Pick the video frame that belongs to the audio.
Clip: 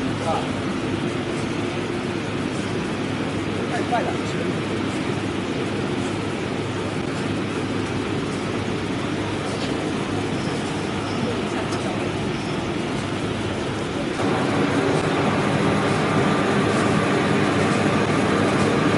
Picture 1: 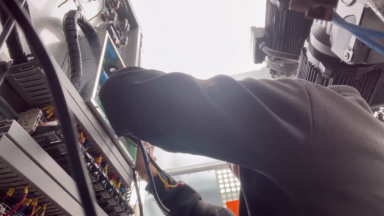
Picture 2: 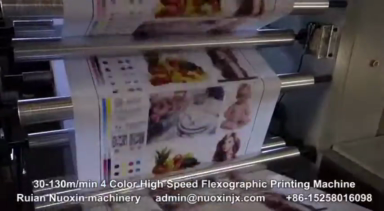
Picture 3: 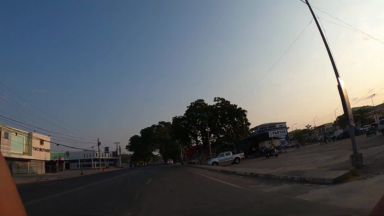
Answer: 2